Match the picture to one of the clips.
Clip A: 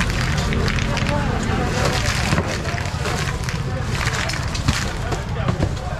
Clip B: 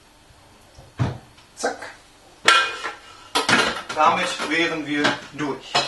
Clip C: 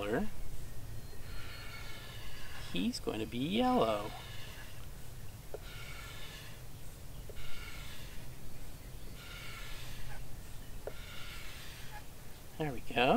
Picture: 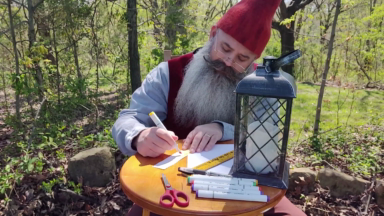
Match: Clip C